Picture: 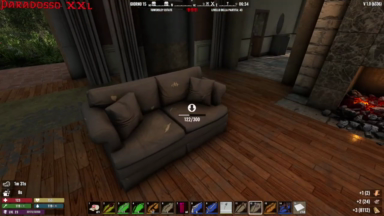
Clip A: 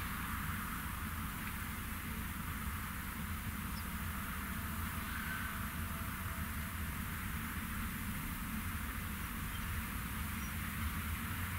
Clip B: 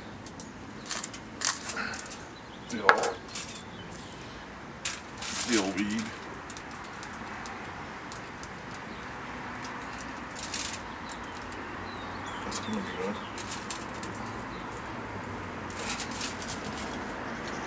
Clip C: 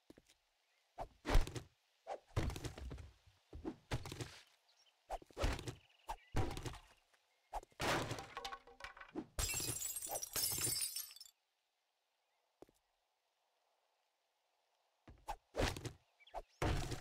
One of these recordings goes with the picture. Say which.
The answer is C